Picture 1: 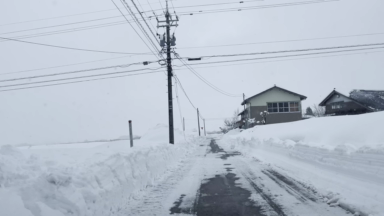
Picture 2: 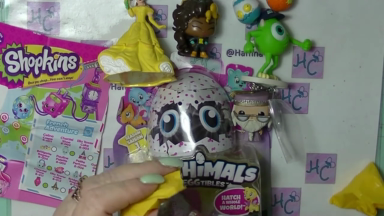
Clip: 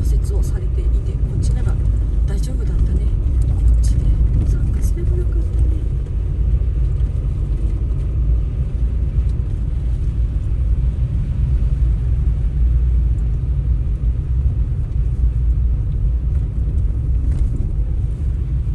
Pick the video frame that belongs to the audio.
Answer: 1